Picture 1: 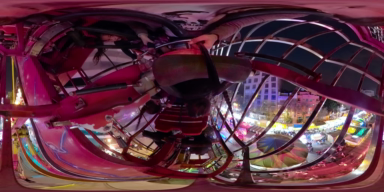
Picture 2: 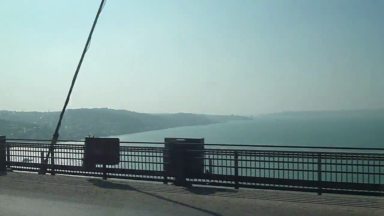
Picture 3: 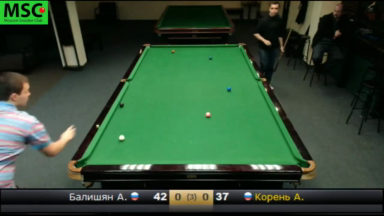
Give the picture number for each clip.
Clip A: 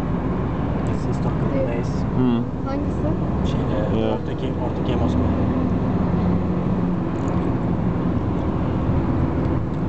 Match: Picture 2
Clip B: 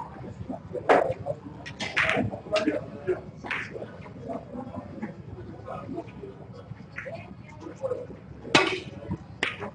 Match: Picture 3